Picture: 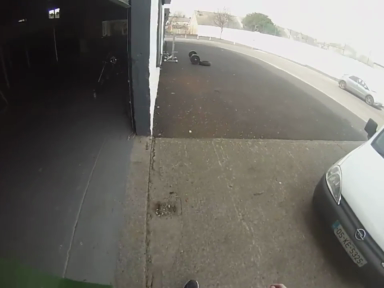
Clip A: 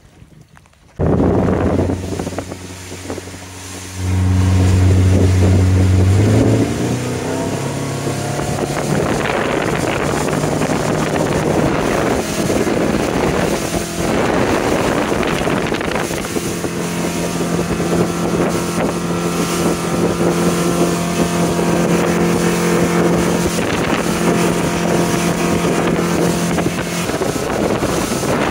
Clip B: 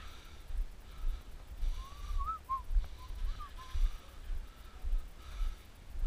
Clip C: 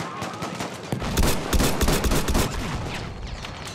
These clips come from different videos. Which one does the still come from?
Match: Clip B